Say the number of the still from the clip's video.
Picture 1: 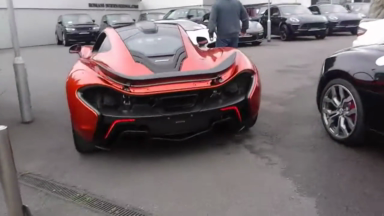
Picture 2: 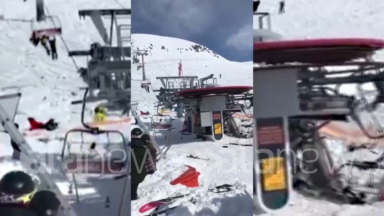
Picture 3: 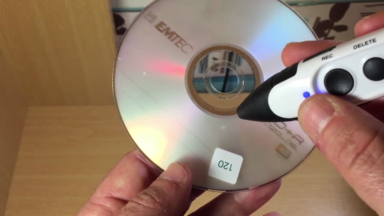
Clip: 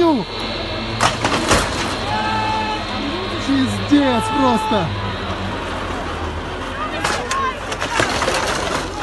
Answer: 2